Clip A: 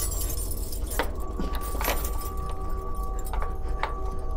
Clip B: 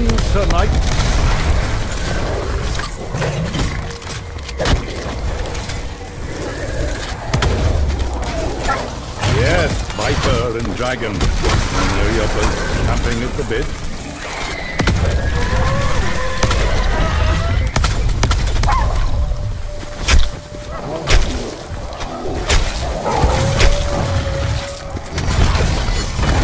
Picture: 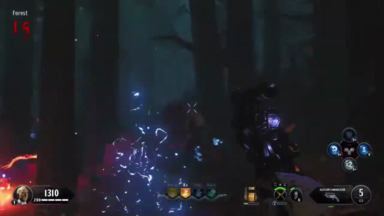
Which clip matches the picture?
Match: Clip B